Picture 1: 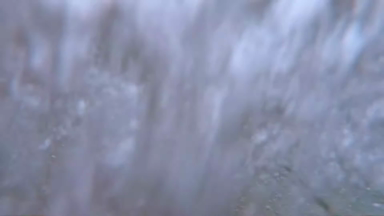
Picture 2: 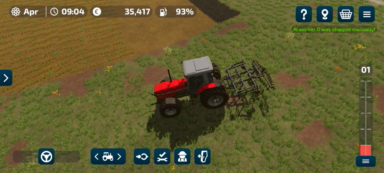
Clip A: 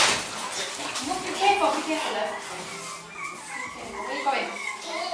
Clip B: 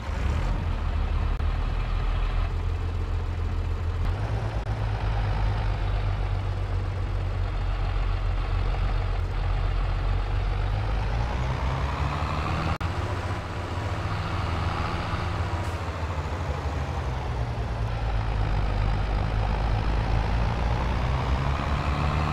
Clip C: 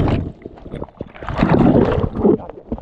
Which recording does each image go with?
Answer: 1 C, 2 B